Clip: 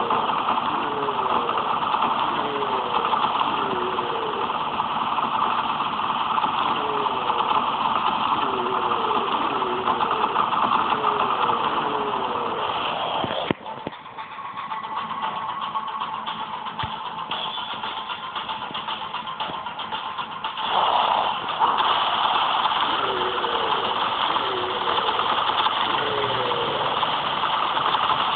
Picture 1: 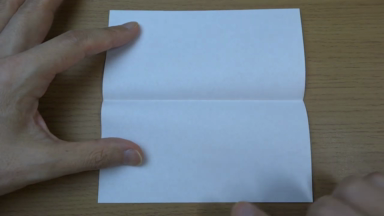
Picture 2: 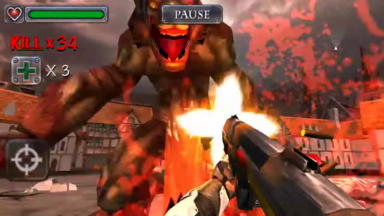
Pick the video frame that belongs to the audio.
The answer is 2